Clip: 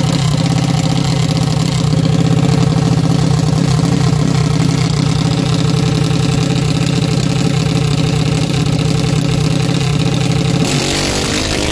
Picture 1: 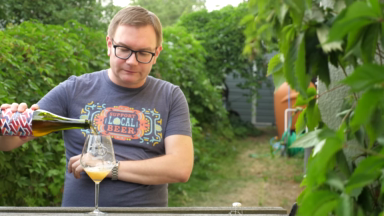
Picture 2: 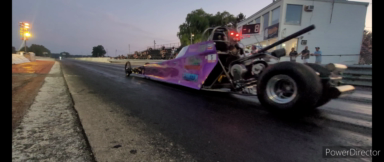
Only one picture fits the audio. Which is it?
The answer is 2